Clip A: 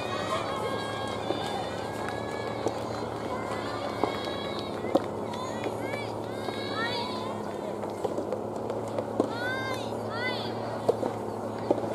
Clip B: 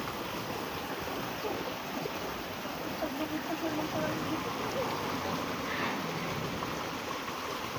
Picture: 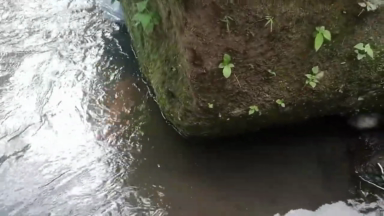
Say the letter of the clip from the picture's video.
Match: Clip B